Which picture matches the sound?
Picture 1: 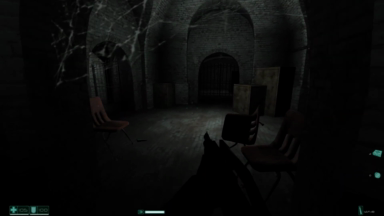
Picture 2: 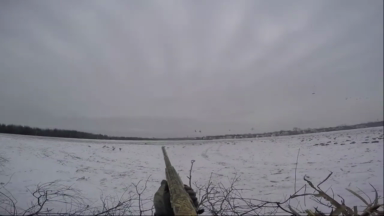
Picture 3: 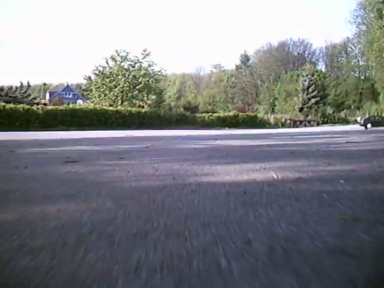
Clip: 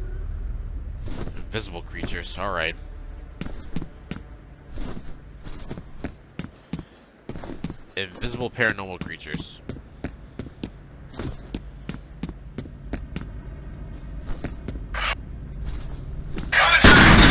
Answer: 1